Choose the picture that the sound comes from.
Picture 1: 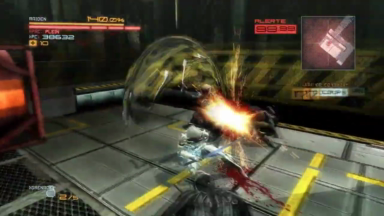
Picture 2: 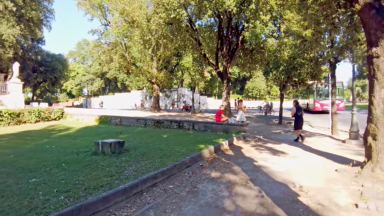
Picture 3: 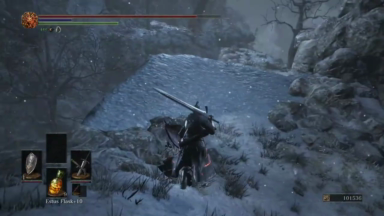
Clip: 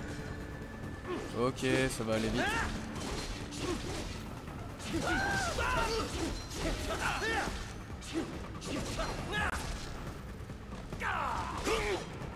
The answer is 1